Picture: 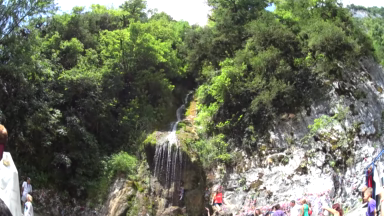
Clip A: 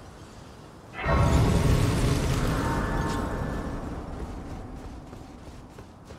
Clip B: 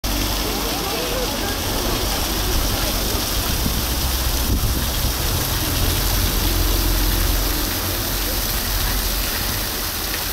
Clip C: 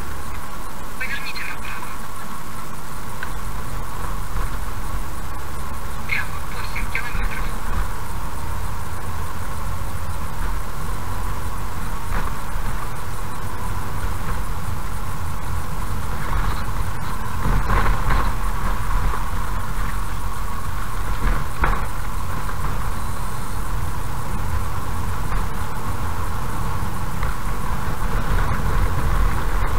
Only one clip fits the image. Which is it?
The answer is B